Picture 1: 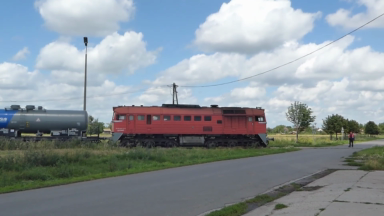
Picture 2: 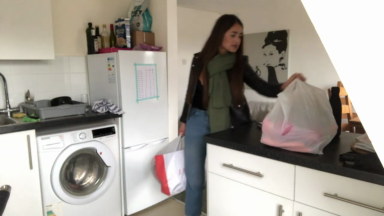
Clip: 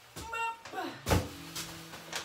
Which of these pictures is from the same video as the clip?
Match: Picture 2